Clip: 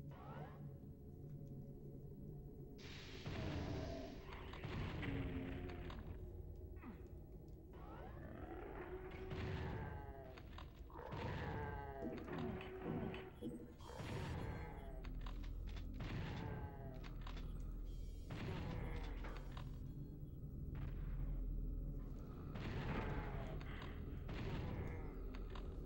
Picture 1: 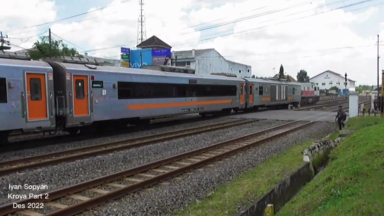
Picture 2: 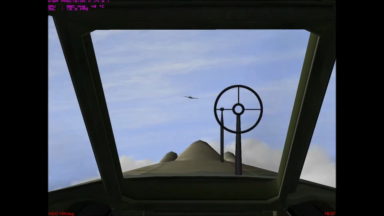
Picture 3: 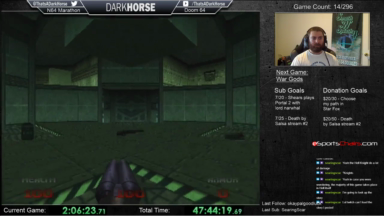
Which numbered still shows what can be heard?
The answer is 3